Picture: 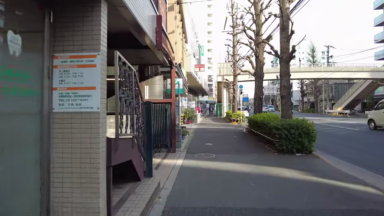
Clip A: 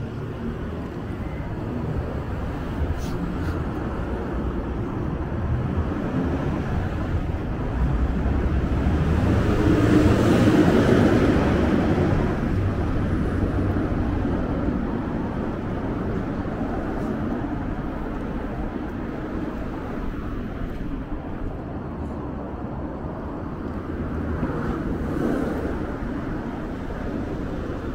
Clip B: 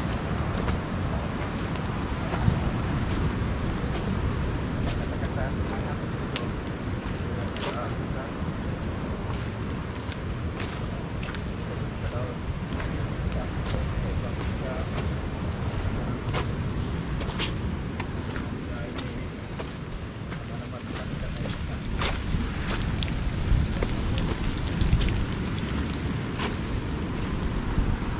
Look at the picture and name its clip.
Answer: A